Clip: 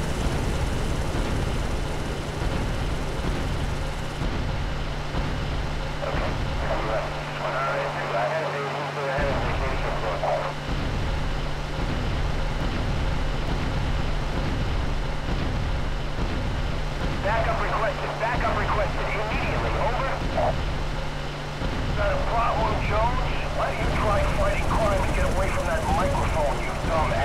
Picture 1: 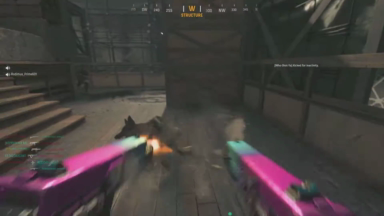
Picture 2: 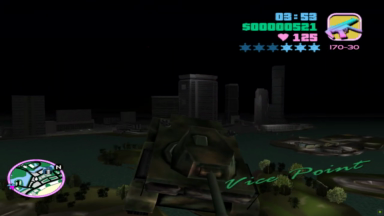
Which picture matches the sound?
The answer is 2